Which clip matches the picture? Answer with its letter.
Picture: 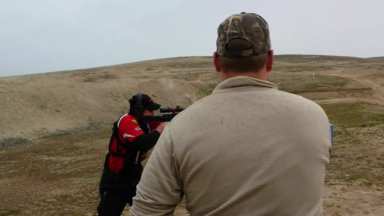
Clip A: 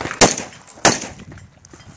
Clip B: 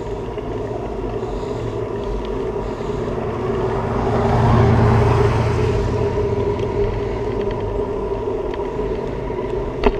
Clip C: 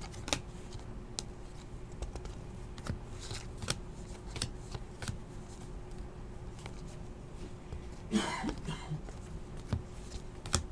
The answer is A